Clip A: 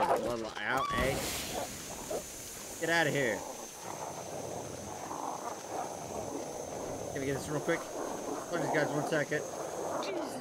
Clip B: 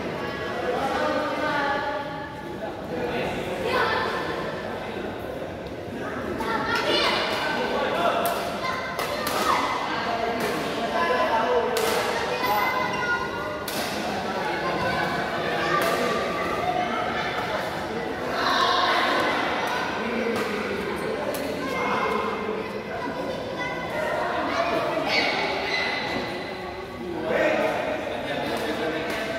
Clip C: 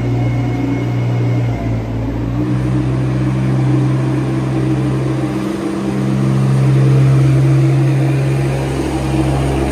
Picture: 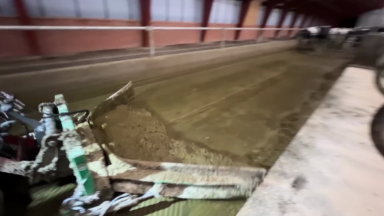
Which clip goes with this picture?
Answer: C